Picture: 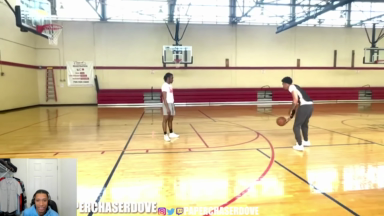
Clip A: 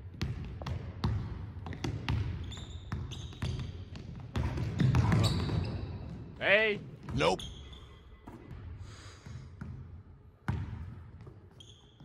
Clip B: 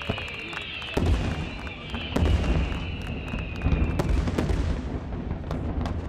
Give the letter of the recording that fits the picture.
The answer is A